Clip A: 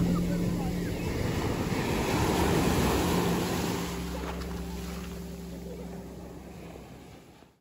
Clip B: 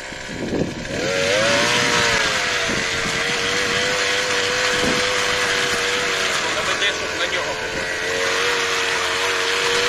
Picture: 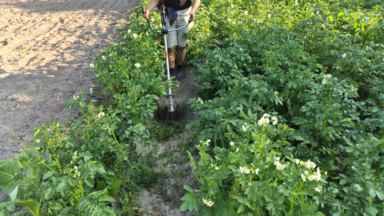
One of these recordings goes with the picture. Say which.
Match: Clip B